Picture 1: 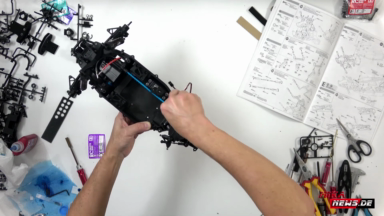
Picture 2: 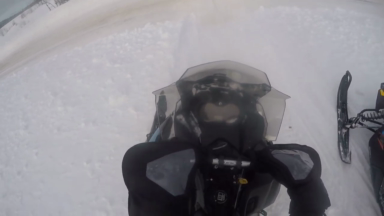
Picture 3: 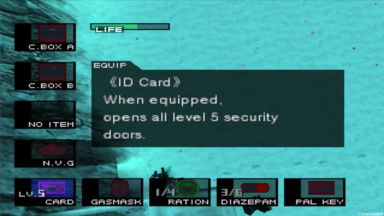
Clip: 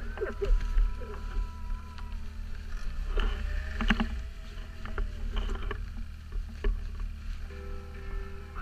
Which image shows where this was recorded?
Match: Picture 2